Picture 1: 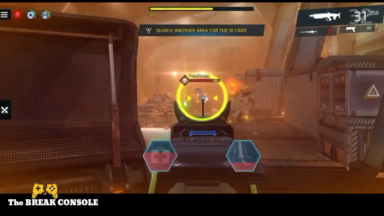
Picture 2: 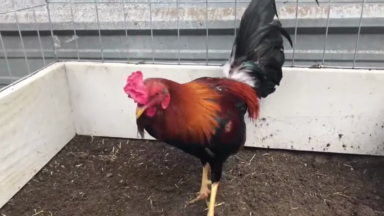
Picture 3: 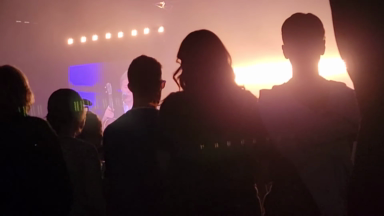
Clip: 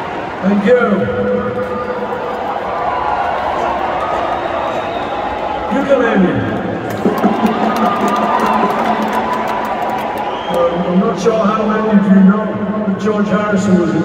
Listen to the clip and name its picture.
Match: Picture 3